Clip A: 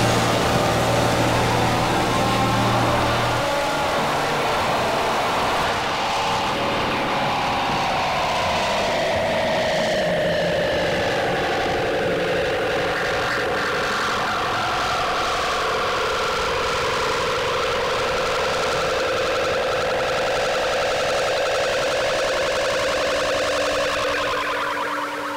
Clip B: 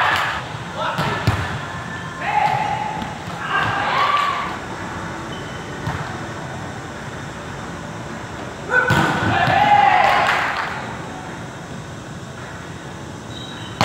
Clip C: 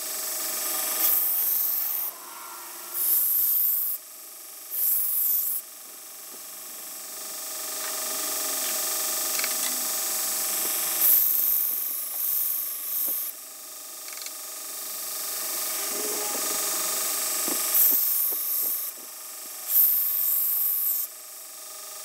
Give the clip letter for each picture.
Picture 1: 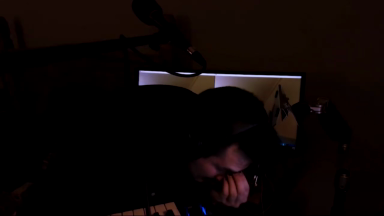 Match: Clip A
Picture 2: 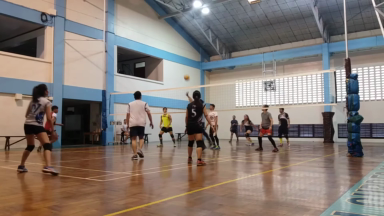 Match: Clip B